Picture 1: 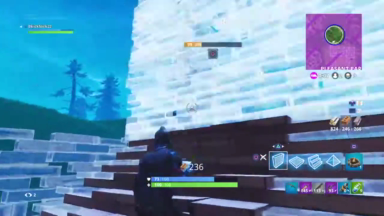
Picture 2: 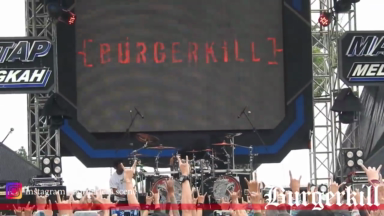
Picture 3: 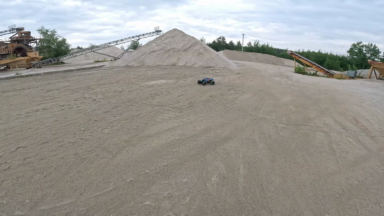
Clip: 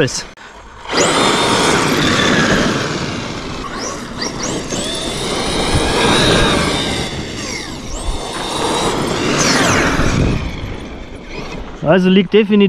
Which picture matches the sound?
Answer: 3